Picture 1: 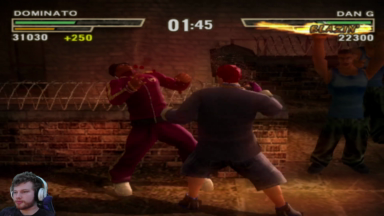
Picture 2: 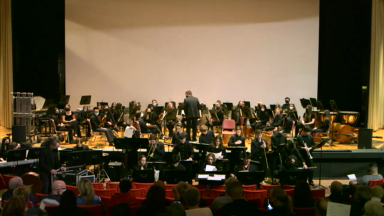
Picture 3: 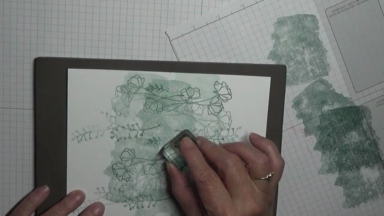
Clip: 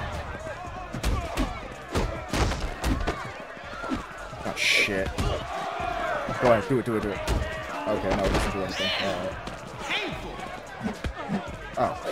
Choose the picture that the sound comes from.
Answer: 1